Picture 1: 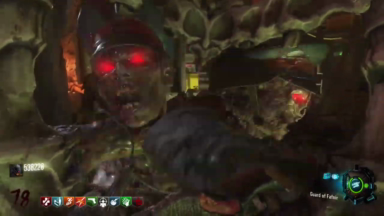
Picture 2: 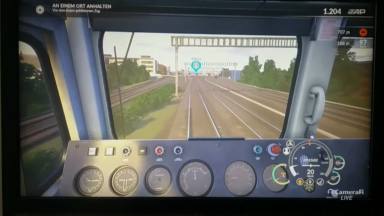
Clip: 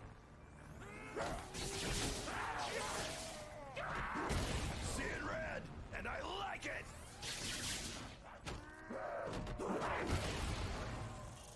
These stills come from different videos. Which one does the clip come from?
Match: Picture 1